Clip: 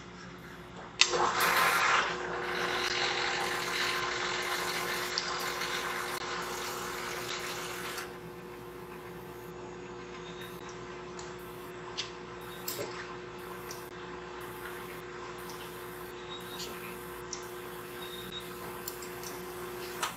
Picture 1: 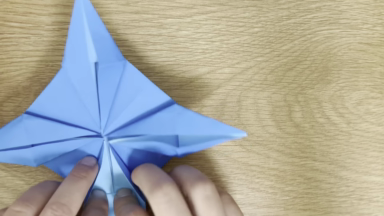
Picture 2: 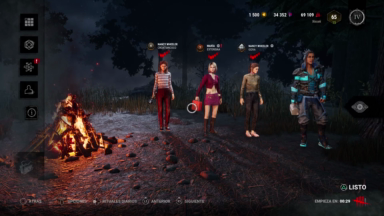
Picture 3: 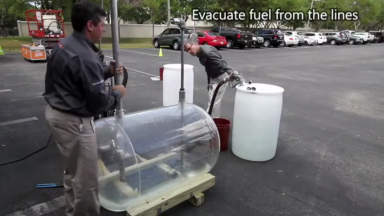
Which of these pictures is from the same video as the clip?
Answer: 3